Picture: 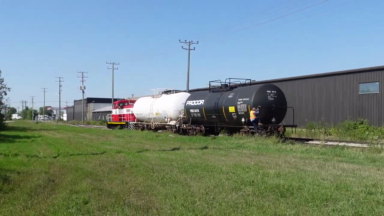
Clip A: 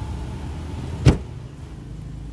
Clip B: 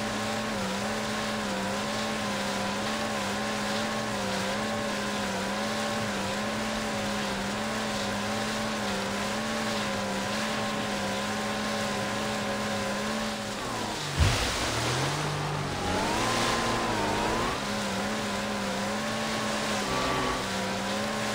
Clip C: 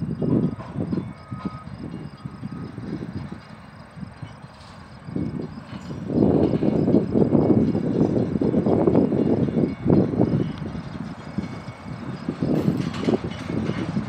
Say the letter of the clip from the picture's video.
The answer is C